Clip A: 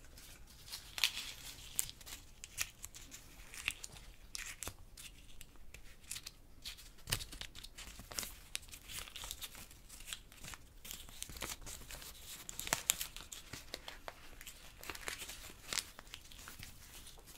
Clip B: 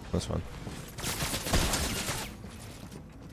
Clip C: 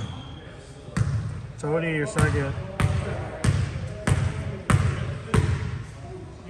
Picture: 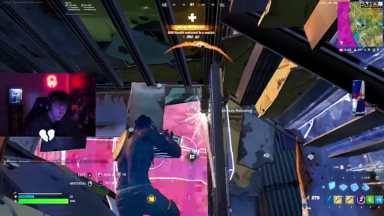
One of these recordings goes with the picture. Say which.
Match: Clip B